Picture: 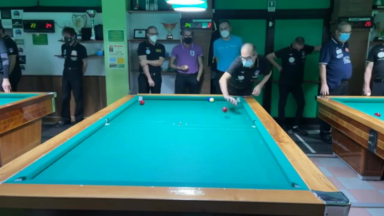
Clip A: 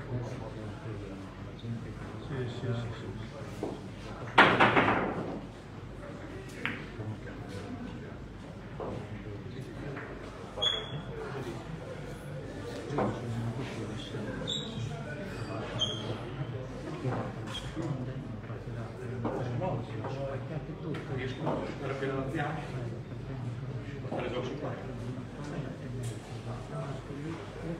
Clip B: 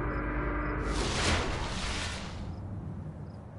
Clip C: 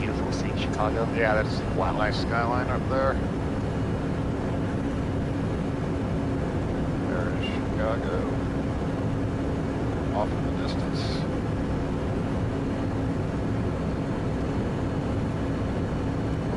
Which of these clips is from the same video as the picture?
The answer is A